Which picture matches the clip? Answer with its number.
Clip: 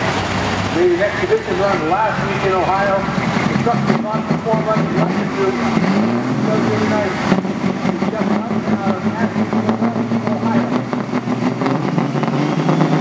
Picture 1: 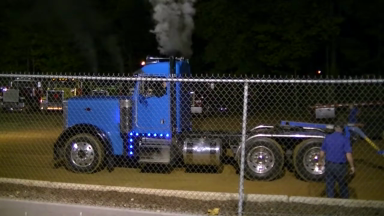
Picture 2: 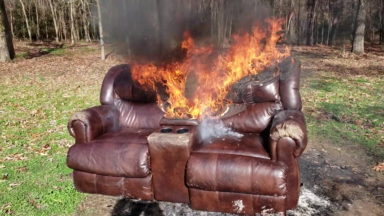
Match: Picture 1